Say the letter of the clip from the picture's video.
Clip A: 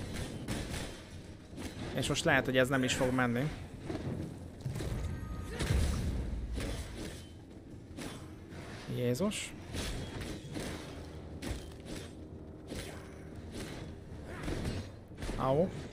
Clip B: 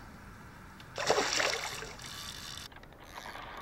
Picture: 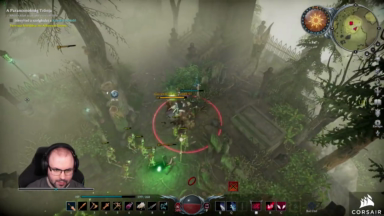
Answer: A